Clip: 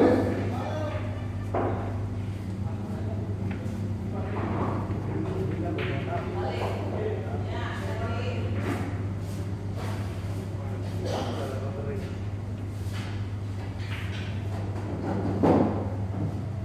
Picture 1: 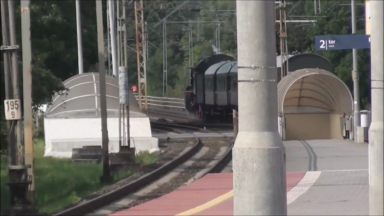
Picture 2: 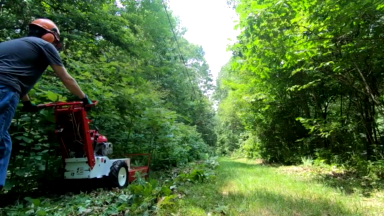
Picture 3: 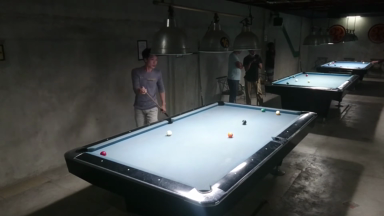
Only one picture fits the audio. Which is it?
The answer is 3